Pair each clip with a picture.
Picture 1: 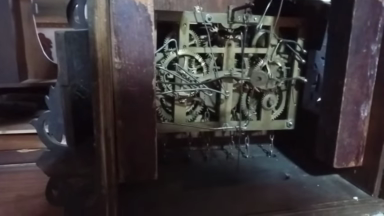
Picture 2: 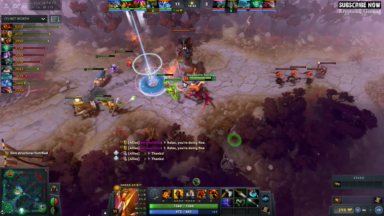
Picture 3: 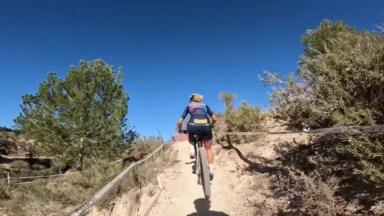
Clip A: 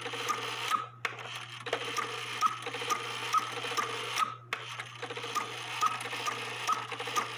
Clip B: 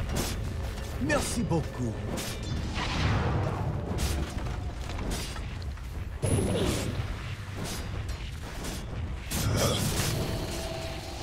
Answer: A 1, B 2